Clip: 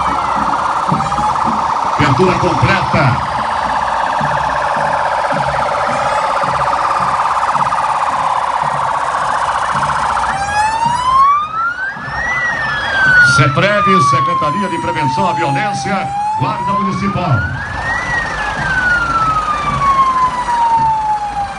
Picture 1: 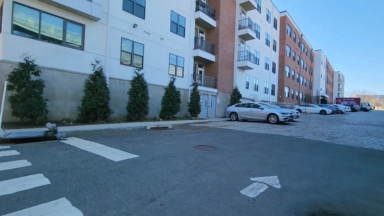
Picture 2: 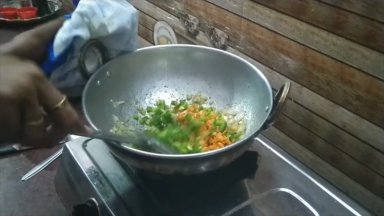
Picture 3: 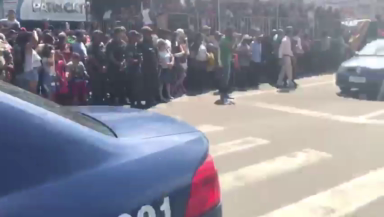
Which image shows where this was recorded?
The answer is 3